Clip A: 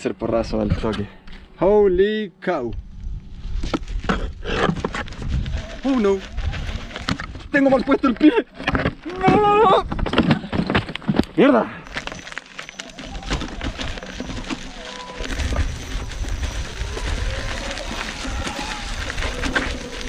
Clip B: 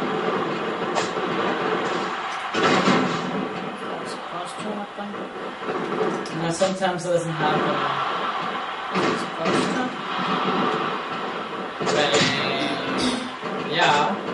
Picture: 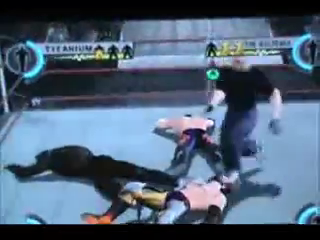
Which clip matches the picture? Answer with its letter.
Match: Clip B